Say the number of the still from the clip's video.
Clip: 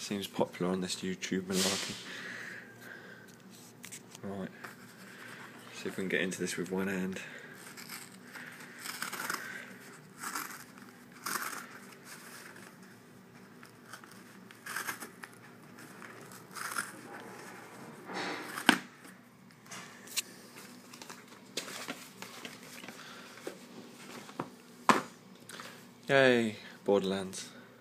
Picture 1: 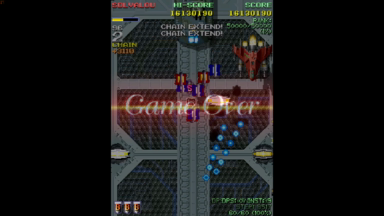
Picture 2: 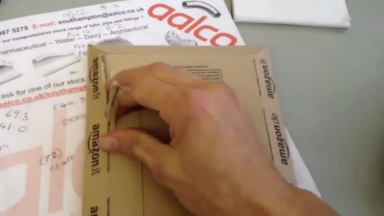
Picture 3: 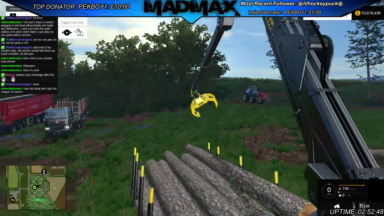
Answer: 2